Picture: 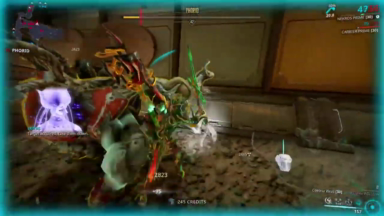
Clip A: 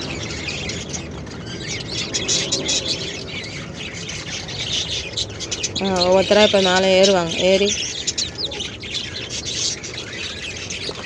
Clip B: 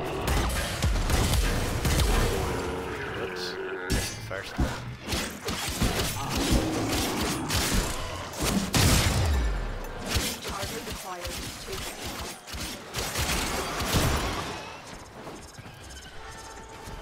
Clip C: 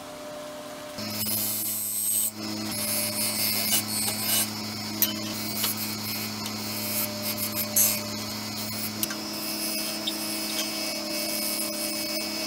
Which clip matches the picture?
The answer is B